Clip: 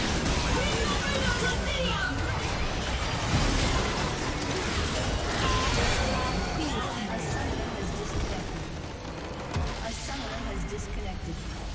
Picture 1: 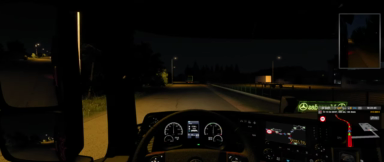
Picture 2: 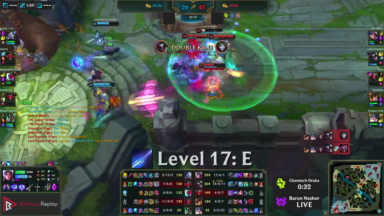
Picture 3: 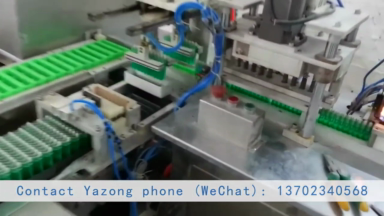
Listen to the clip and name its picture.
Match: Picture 2